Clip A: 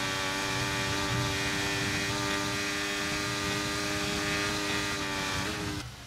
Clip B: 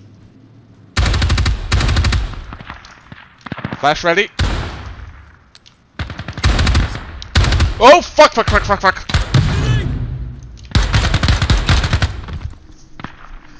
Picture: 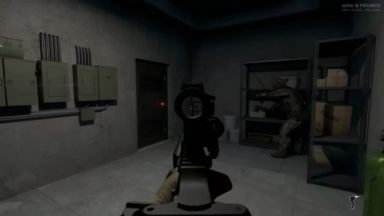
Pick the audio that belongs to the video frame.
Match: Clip B